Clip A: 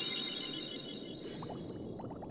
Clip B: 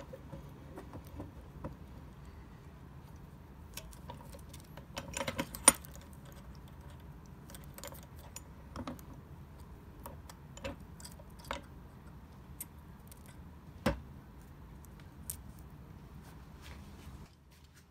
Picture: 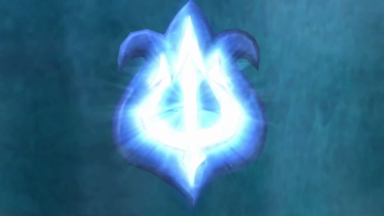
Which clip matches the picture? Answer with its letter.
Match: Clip A